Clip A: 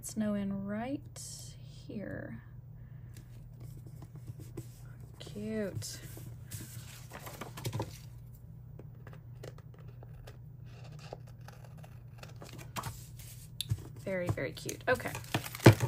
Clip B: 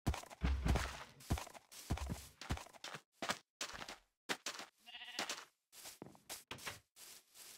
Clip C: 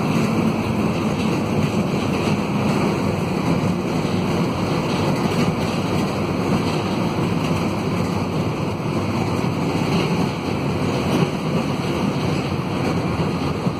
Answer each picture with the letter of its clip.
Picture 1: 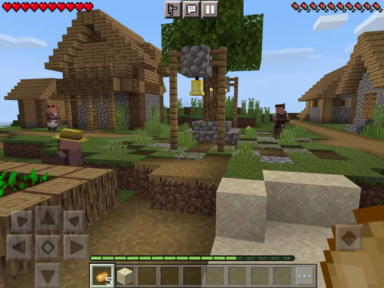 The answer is B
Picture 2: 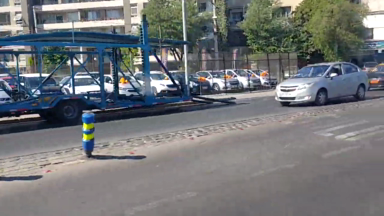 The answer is C